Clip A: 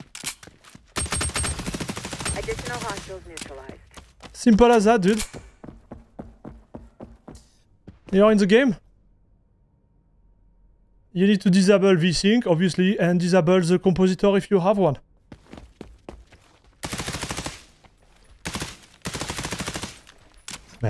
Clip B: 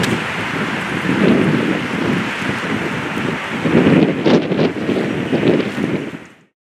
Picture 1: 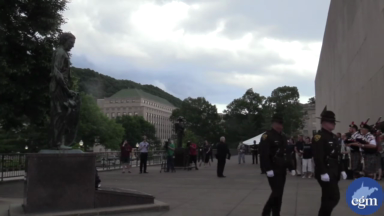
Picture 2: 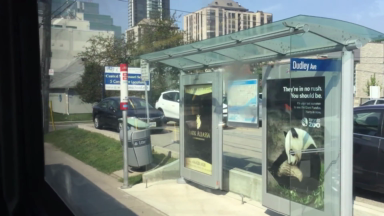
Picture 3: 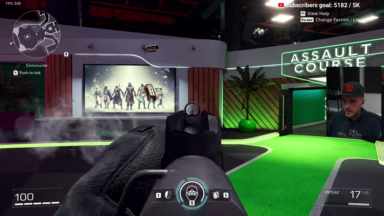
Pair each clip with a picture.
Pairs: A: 3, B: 1